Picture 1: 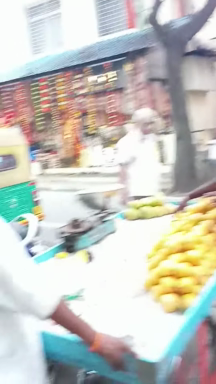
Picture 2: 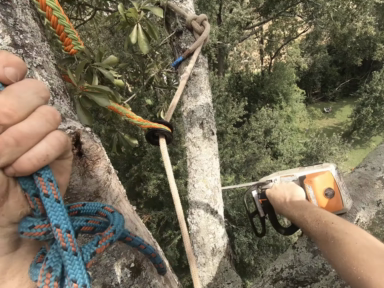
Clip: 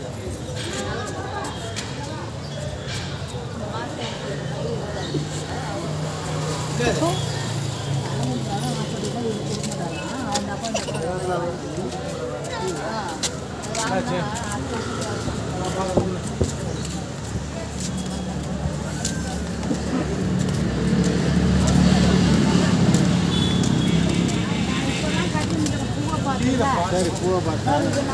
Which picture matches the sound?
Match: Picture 1